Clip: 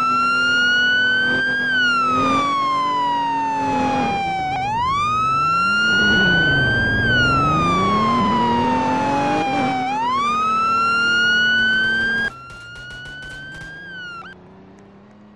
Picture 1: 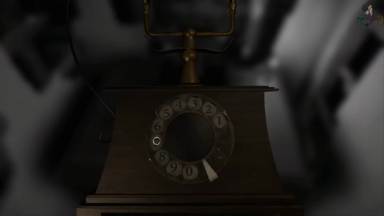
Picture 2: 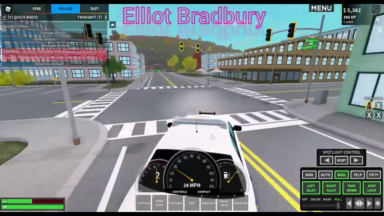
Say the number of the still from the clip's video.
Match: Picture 2